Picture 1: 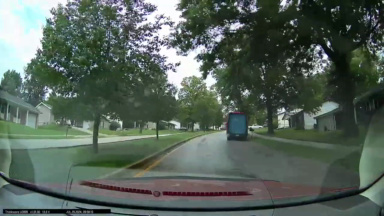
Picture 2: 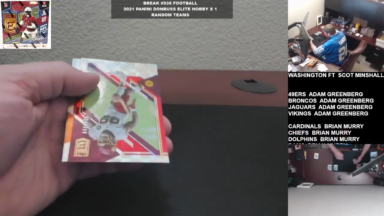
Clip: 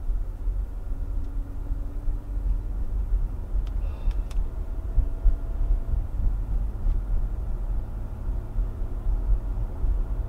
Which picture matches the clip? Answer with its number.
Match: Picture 1